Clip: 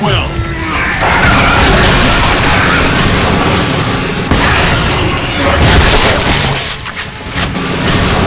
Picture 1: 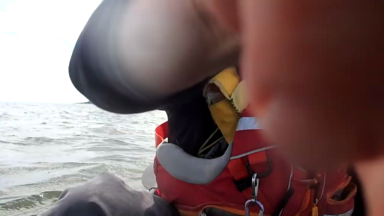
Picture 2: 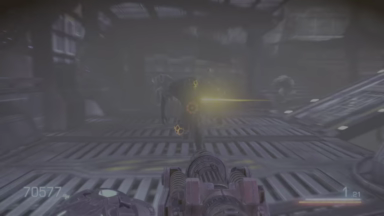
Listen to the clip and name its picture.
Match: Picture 2